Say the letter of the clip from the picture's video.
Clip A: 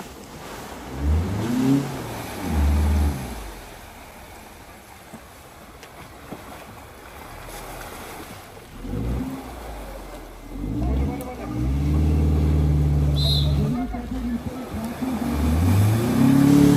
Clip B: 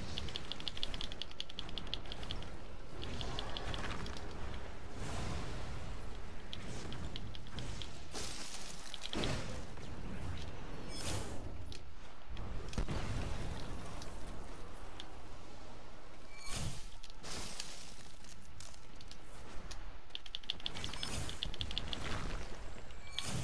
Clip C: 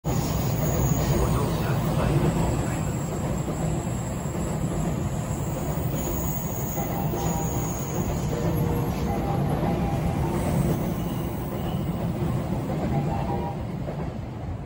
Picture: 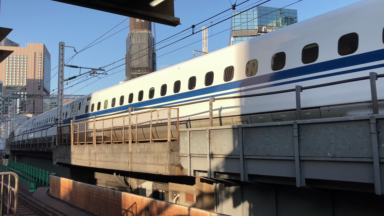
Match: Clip C